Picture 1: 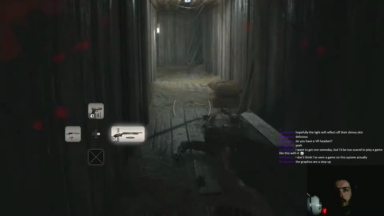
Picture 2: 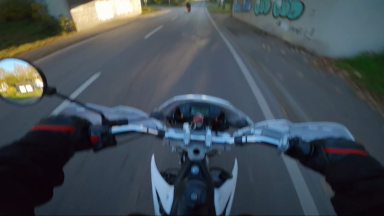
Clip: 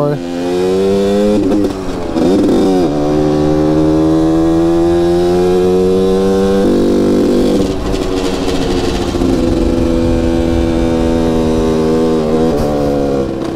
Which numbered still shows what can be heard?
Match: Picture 2